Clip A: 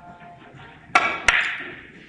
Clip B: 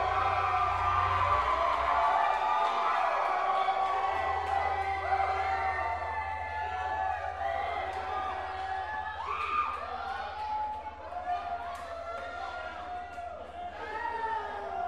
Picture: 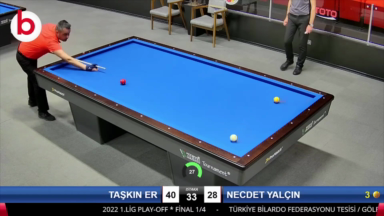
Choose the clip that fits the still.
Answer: A